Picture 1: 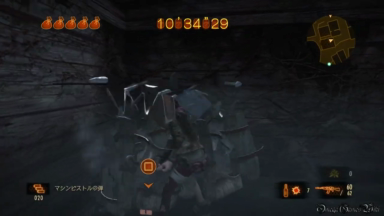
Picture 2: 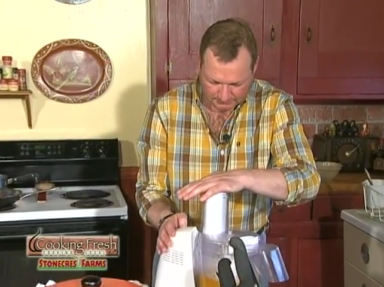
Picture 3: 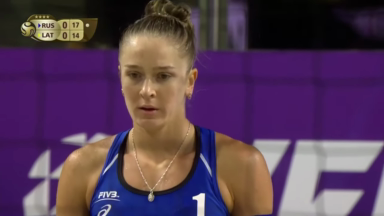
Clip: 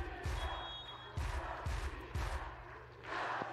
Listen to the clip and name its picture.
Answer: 3